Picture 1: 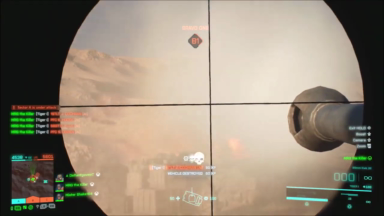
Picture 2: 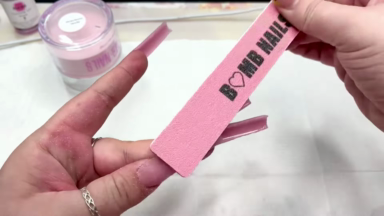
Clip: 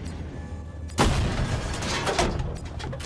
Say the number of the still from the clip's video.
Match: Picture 1